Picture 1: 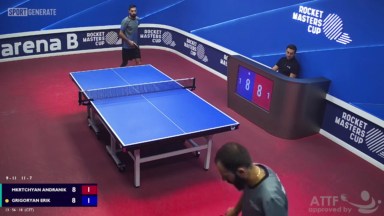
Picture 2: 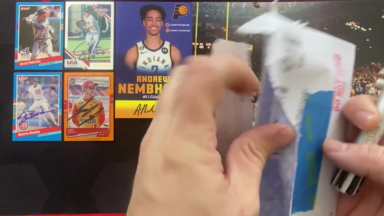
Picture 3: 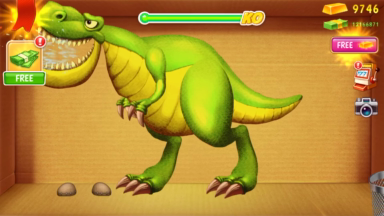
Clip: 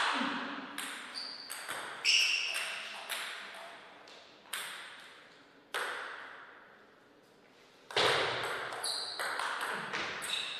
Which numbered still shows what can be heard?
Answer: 1